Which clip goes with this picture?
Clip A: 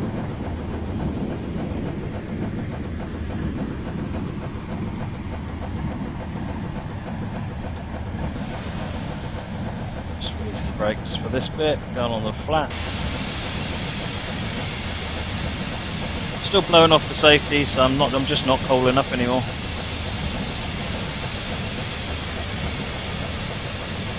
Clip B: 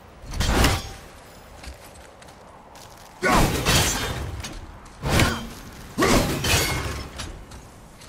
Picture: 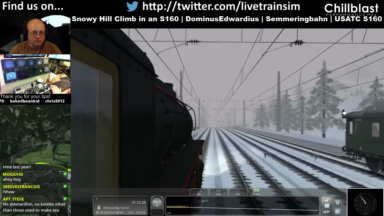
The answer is A